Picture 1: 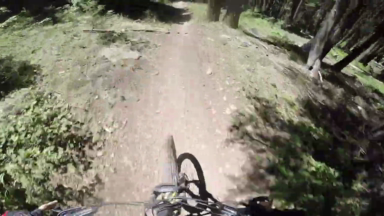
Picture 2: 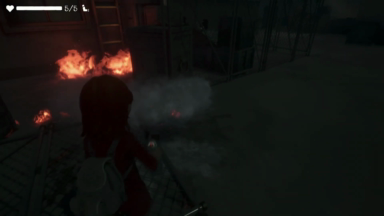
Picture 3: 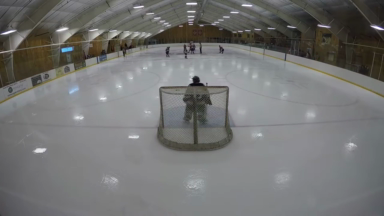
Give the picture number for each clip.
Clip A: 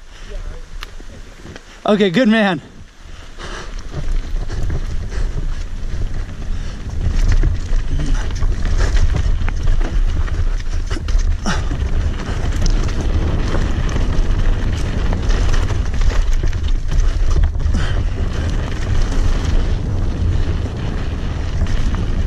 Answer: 1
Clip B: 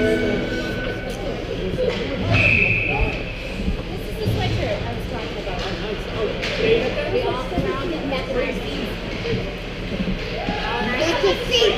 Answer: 3